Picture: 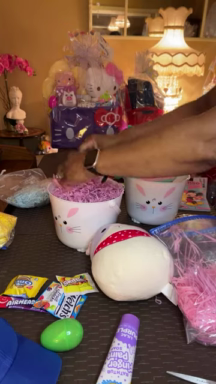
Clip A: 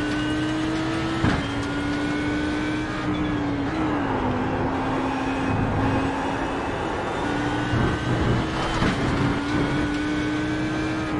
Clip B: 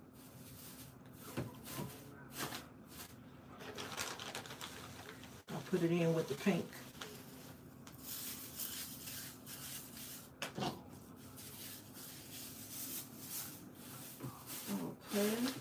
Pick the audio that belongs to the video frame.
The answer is B